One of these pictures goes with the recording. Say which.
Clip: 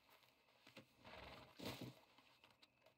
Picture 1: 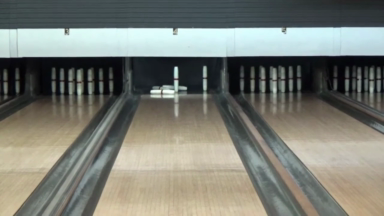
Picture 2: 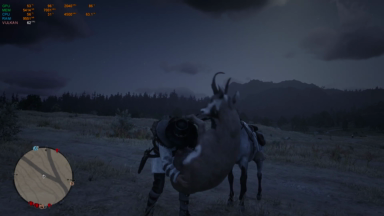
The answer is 2